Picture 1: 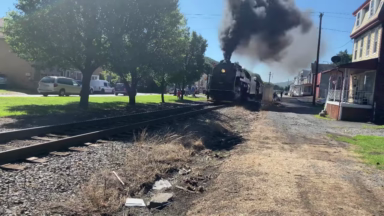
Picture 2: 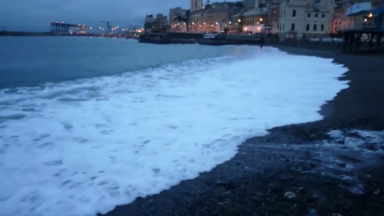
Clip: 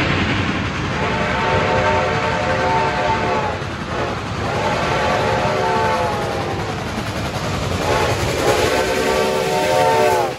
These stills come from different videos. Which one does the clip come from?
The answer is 1